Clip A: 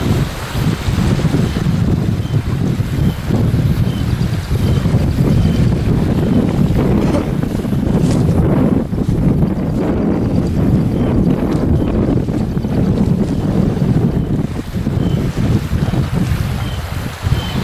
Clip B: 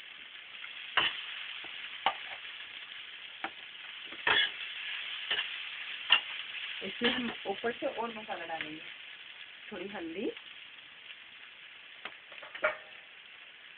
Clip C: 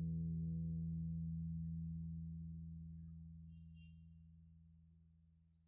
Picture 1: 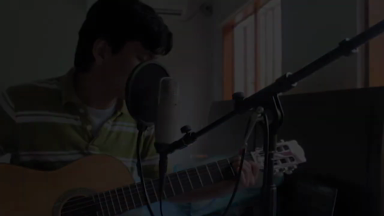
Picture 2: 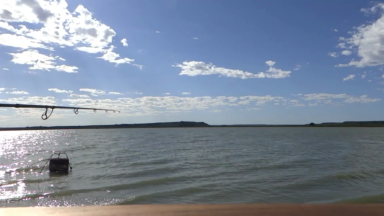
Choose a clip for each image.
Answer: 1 C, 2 A